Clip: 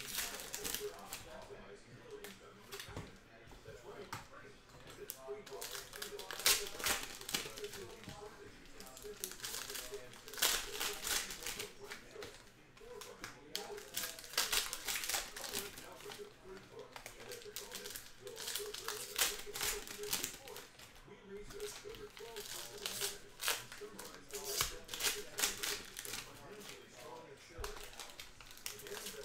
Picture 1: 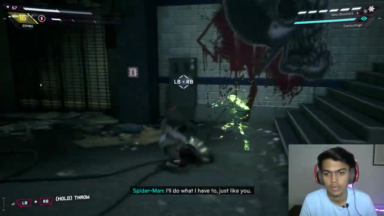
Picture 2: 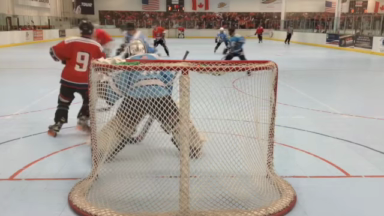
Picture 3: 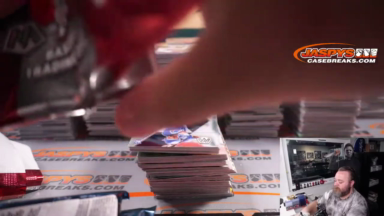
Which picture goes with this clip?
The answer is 3